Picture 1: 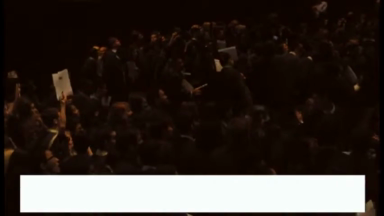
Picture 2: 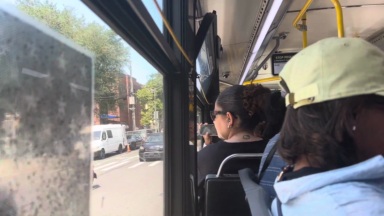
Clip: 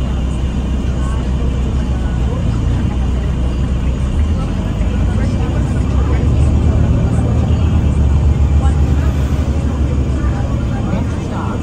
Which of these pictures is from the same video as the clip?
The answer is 2